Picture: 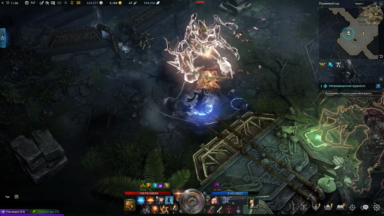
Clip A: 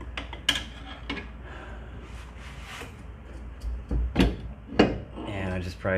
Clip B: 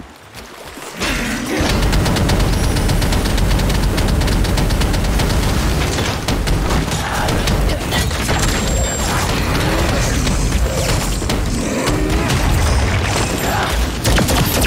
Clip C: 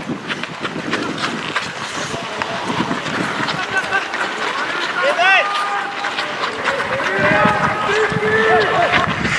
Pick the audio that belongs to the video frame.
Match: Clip B